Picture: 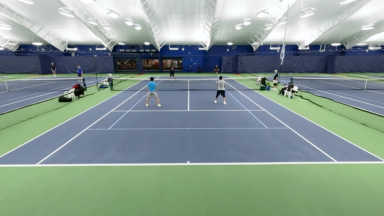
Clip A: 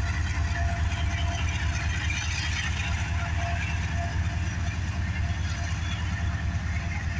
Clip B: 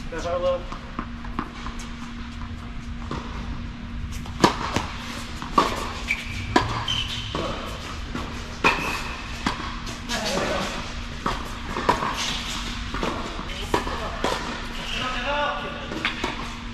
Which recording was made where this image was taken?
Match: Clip B